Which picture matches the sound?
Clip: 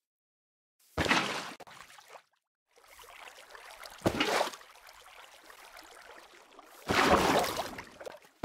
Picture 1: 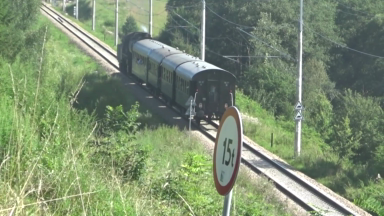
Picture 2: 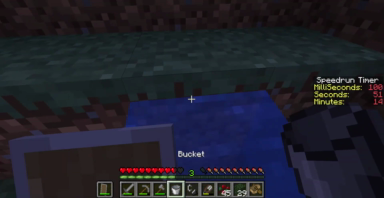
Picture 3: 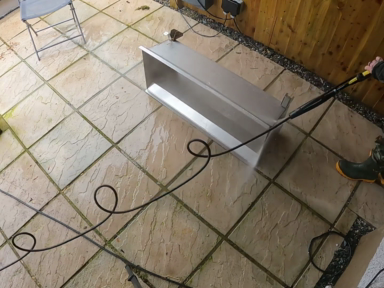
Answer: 2